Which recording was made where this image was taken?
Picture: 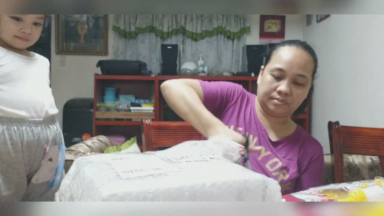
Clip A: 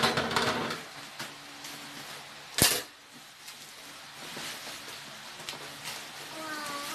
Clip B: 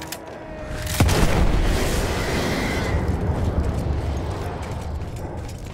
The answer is A